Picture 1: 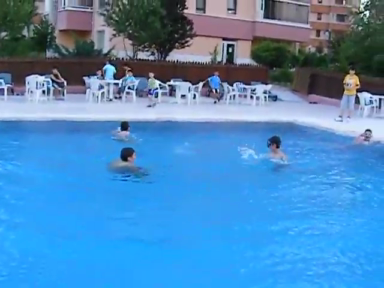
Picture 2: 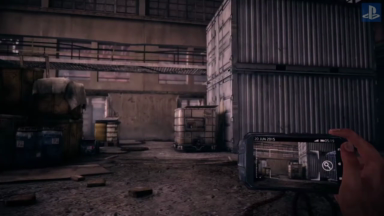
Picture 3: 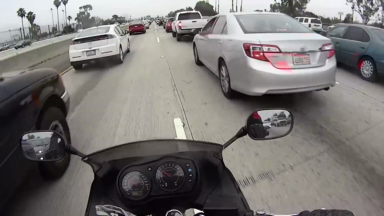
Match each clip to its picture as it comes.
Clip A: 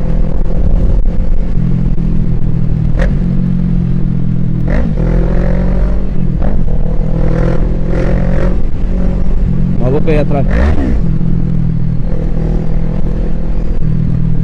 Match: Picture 3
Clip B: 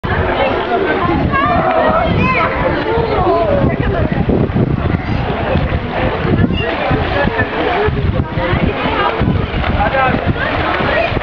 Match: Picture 1